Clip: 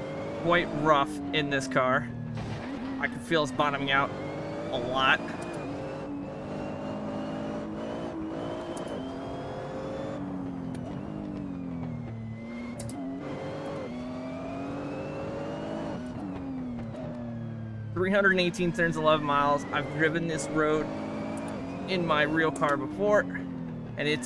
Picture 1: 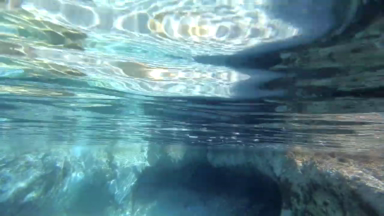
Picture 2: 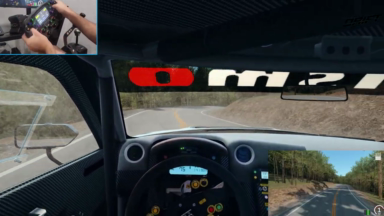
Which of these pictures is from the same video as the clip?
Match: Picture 2